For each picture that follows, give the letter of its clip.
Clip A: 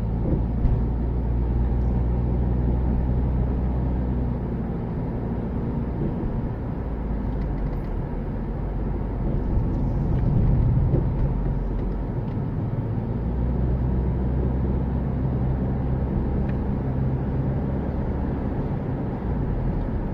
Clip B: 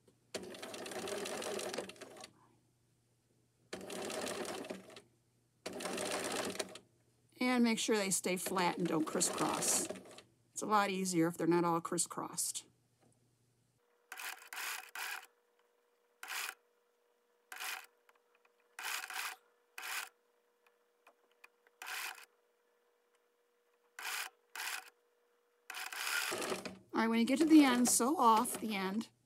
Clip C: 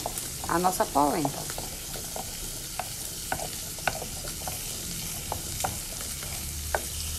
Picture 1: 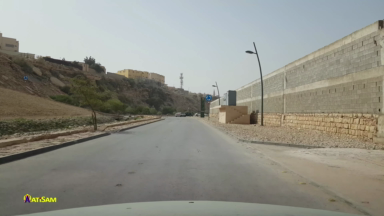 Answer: A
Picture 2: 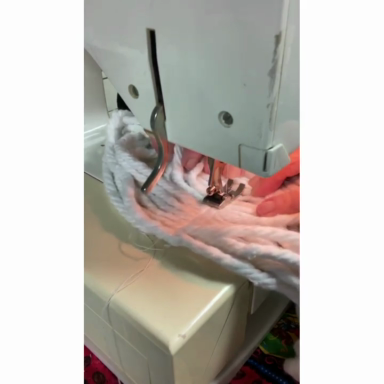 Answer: B